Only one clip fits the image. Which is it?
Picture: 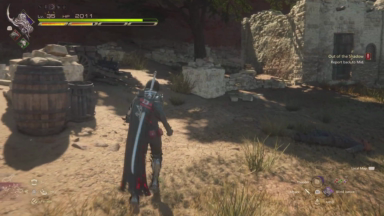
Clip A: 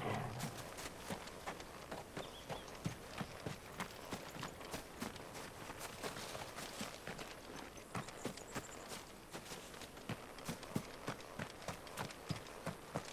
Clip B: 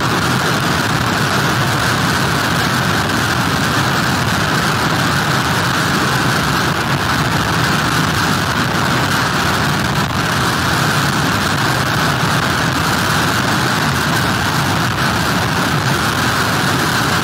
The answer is A